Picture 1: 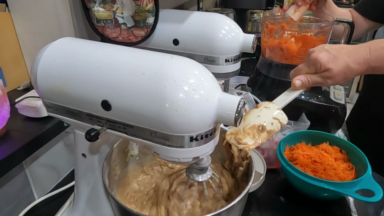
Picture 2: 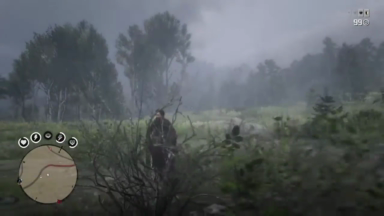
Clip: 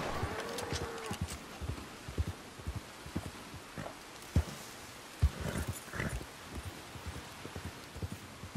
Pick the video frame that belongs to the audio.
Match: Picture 2